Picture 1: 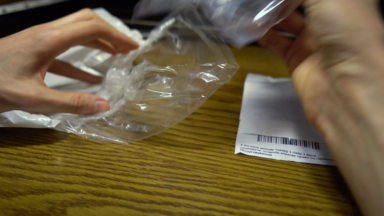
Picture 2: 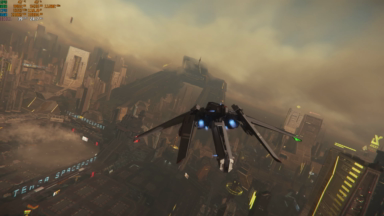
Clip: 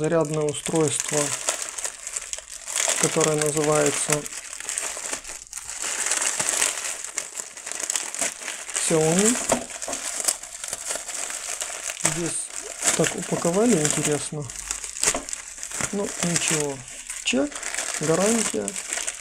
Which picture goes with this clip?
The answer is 1